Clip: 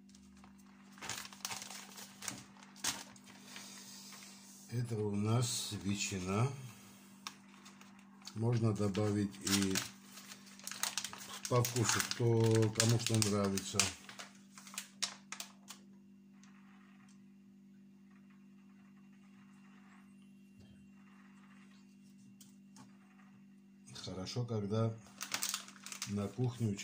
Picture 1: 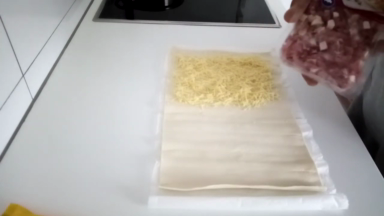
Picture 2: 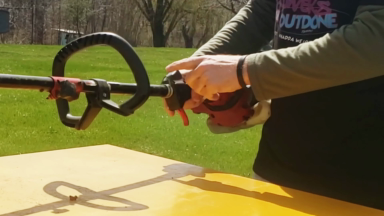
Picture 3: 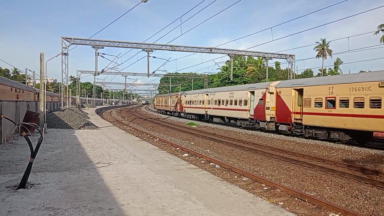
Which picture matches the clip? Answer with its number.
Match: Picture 1